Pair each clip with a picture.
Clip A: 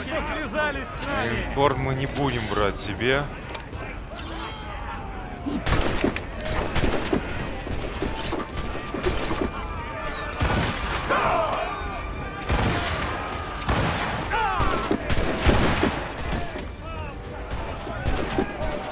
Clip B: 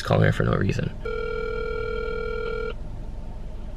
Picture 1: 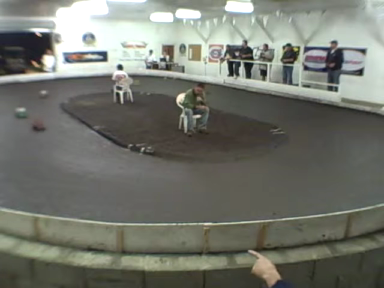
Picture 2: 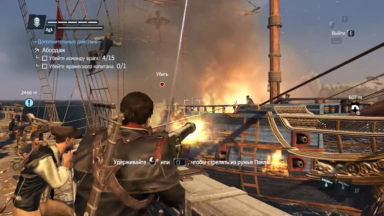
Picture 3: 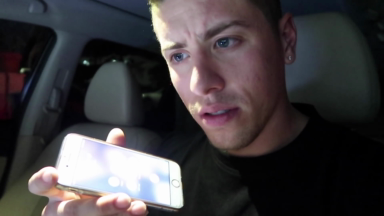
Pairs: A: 2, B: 3